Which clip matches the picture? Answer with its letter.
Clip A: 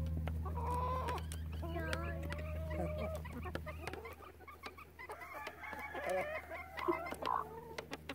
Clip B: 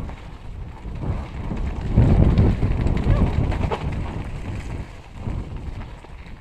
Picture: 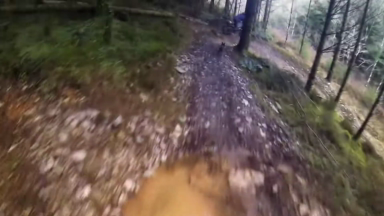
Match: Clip B